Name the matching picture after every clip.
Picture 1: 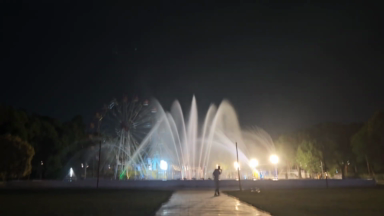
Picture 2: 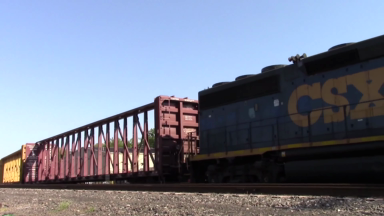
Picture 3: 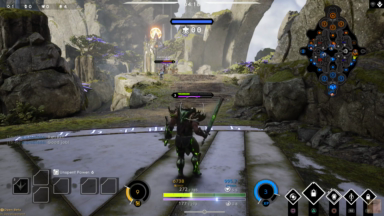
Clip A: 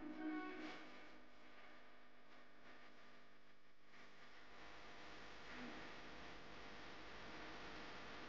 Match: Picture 1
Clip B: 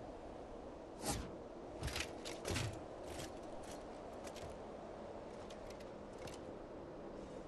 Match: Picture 3